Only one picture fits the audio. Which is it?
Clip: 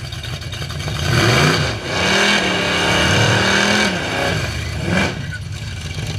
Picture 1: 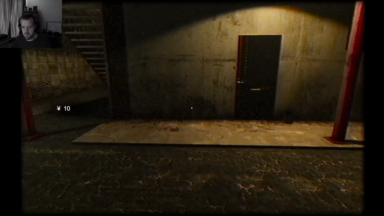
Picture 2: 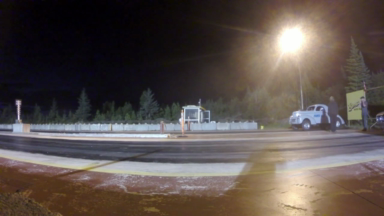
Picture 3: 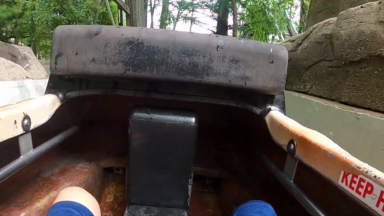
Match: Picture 2